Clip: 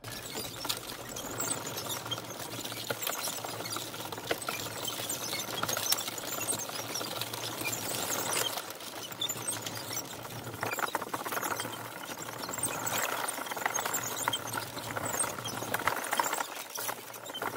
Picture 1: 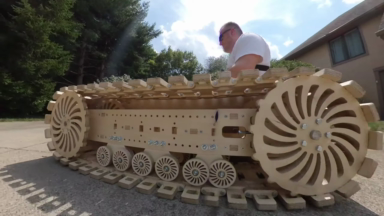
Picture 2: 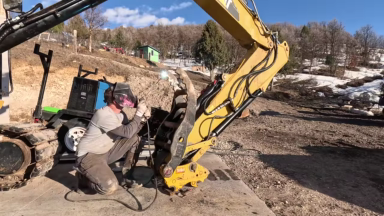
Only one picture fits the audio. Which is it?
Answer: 1